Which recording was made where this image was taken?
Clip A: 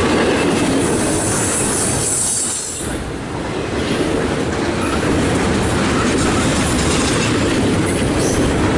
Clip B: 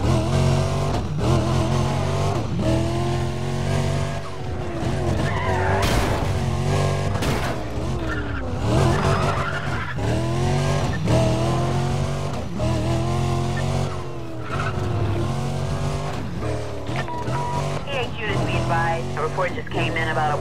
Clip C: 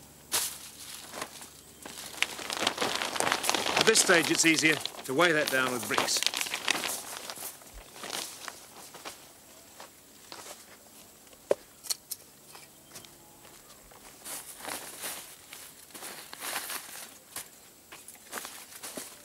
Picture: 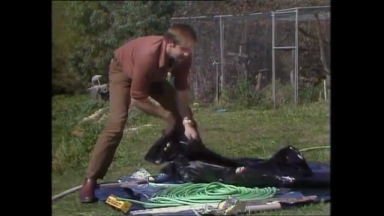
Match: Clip C